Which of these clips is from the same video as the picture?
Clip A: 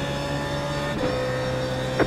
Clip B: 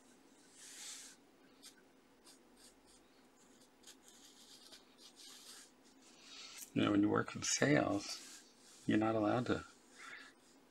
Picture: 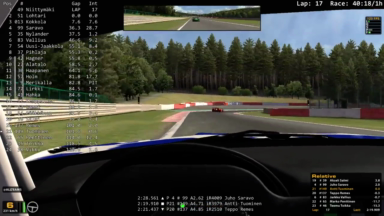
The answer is A